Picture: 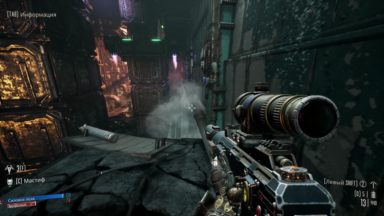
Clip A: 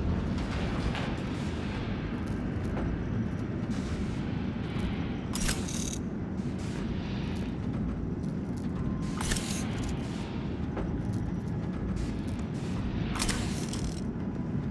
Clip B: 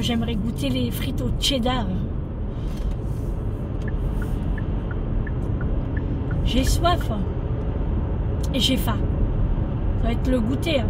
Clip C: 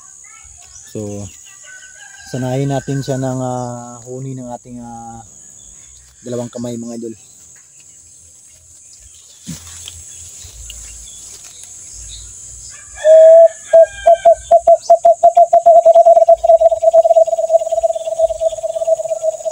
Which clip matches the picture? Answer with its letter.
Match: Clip A